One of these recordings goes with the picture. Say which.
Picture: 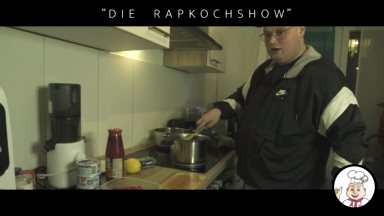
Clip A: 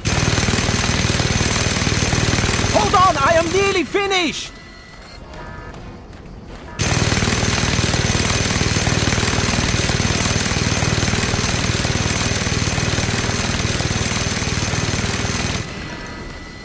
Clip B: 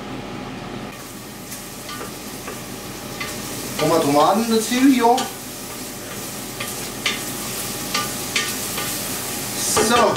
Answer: B